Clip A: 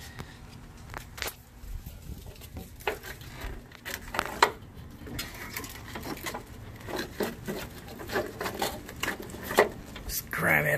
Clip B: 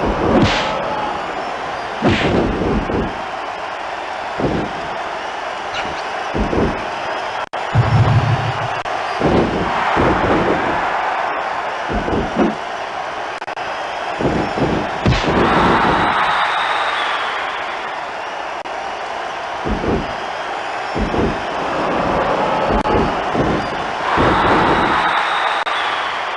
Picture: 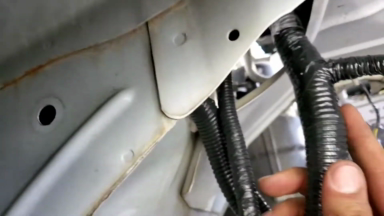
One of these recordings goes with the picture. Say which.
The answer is A